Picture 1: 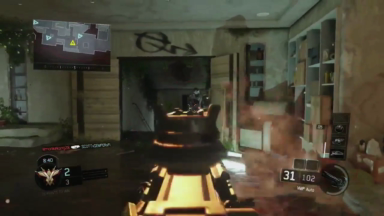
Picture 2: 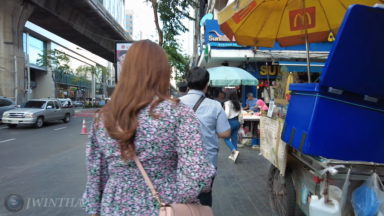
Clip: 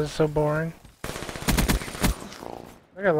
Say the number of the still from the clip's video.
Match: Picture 1